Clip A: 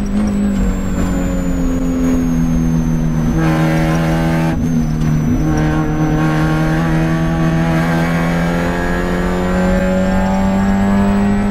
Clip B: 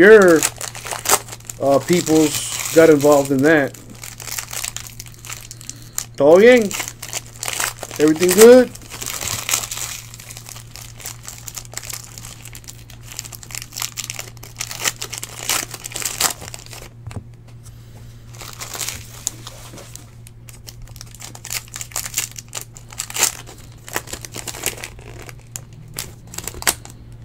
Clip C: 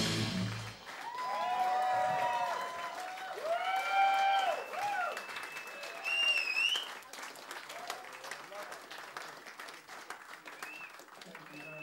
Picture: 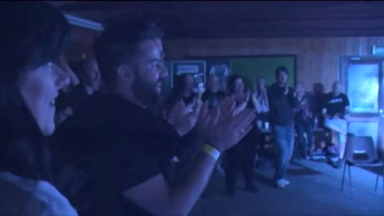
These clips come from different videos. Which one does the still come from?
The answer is C